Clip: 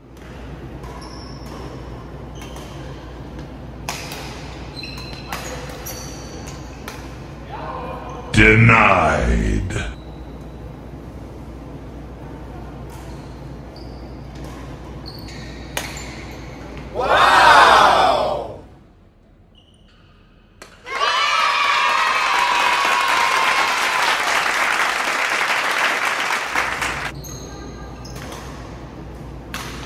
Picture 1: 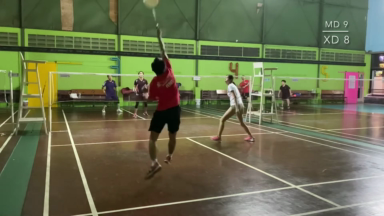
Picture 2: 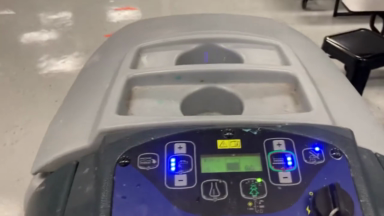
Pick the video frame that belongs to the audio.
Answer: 1